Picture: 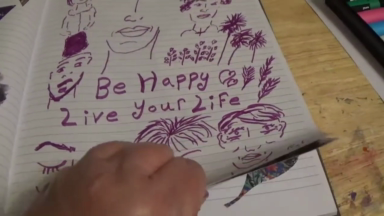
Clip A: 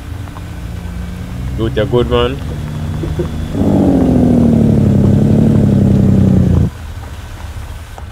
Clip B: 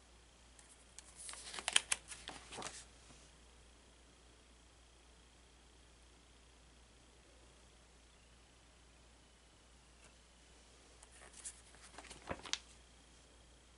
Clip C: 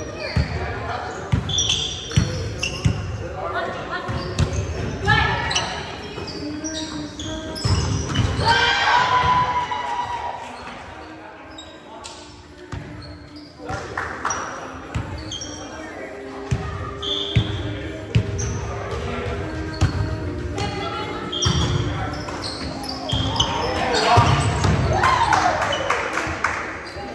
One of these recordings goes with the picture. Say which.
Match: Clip B